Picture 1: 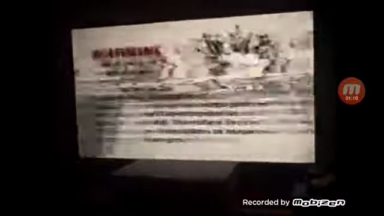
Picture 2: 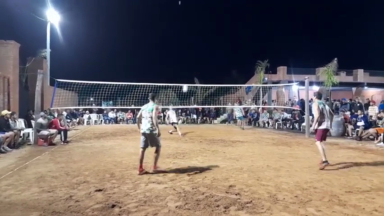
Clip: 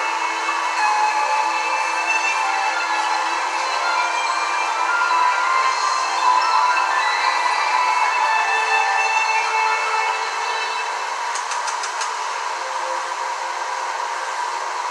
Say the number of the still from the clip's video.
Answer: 1